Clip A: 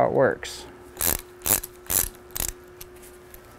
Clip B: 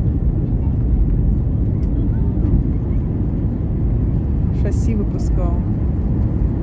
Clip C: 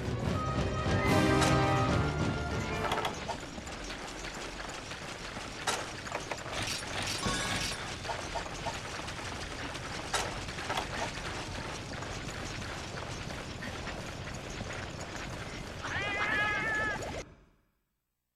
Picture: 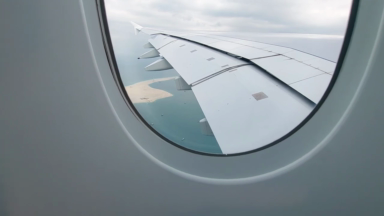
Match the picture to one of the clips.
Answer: B